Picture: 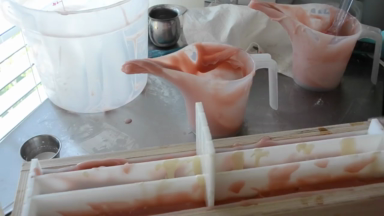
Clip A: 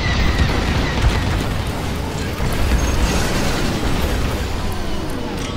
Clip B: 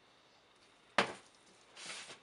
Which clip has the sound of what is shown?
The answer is B